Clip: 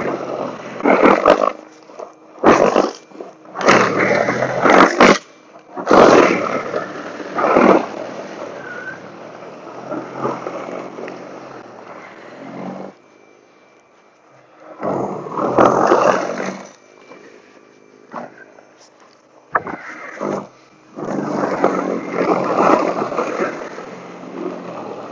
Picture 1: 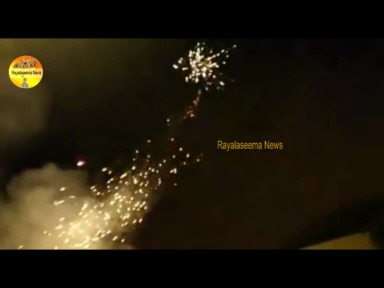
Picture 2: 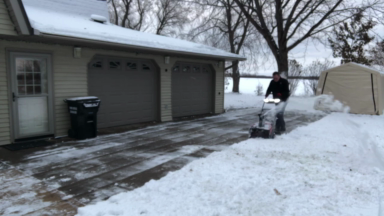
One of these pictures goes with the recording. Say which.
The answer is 2